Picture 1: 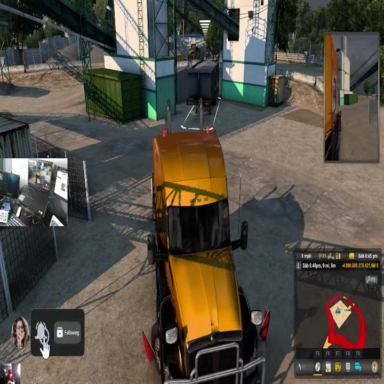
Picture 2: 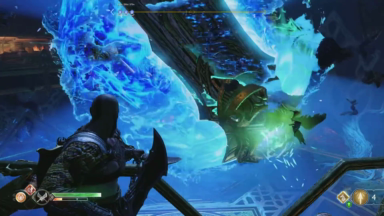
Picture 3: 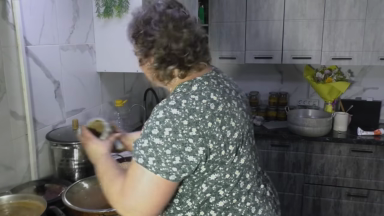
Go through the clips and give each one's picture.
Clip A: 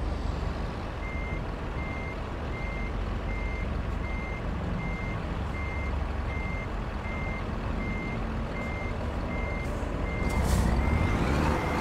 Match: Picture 1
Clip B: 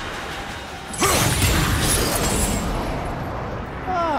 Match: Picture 2